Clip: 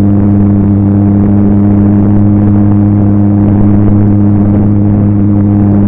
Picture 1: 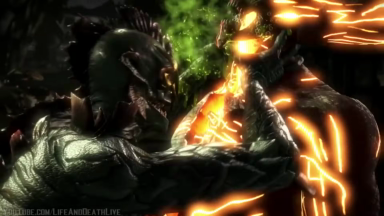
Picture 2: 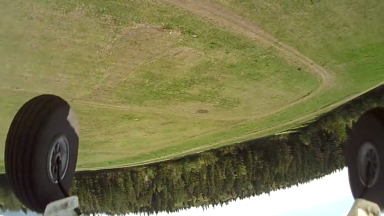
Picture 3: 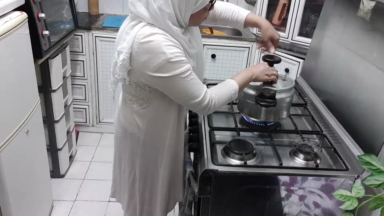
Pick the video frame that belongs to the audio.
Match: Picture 2